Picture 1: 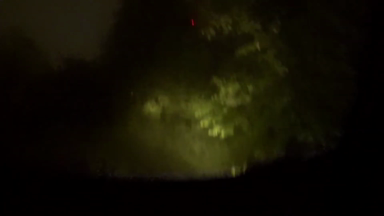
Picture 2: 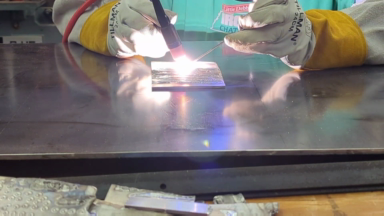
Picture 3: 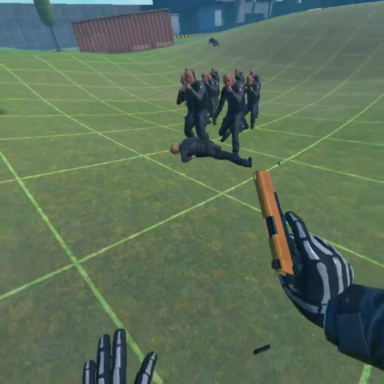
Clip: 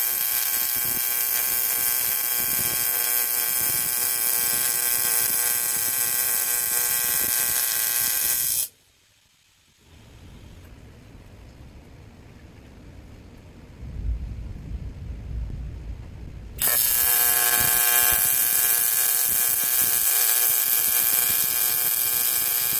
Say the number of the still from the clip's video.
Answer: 2